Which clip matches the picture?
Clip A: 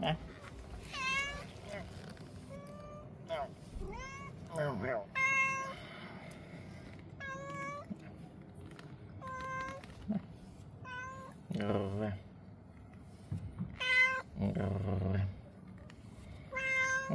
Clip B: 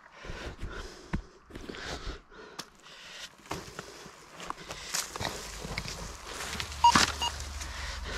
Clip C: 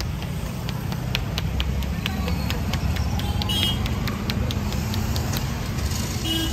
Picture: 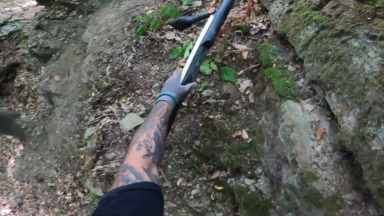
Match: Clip B